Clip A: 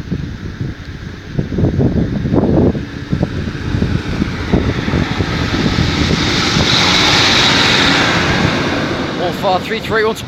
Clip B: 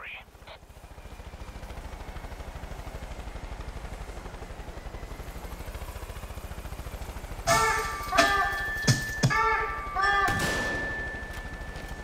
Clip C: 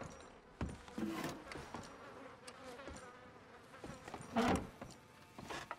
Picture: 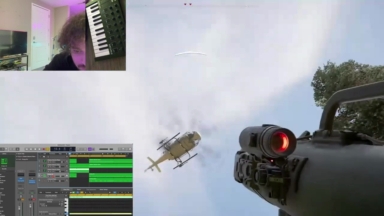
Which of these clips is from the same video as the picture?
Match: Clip B